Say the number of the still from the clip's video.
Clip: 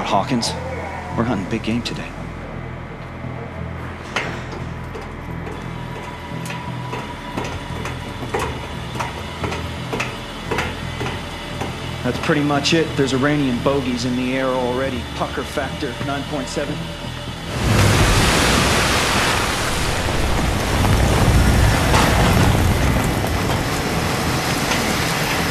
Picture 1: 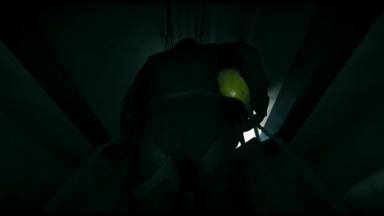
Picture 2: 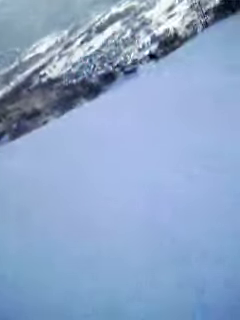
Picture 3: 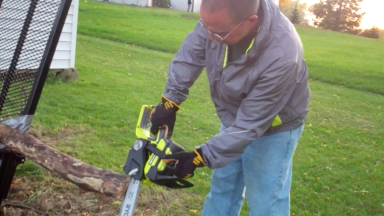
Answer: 1